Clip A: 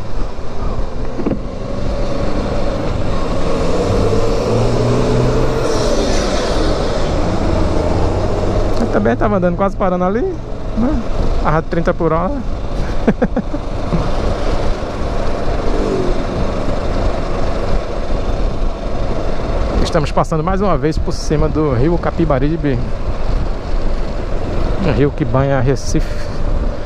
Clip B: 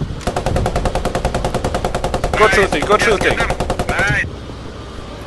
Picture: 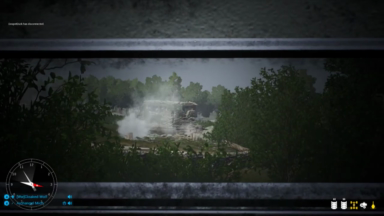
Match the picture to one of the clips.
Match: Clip B